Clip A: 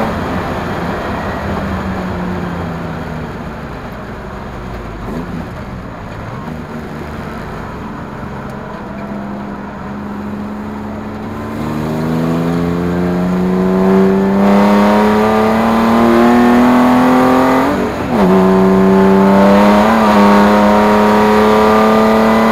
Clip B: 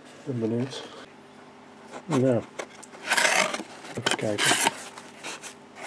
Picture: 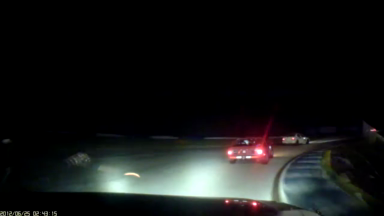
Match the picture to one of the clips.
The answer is A